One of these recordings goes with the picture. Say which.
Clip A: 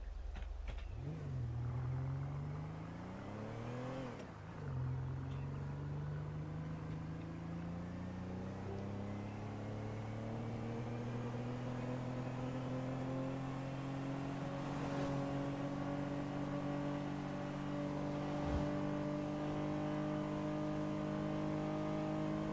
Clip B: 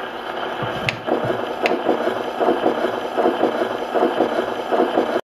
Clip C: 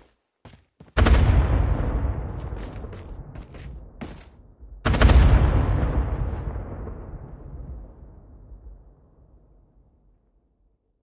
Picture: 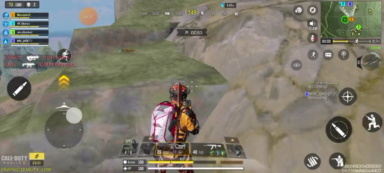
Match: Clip C